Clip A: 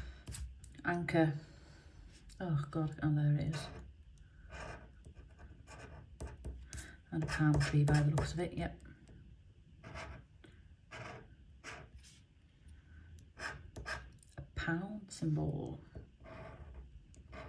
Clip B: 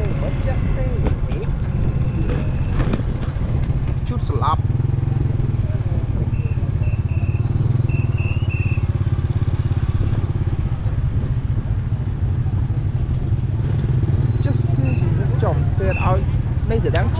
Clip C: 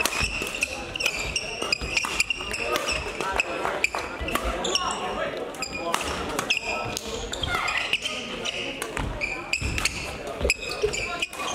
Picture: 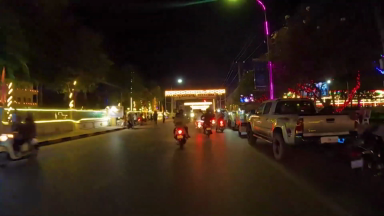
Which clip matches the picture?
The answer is B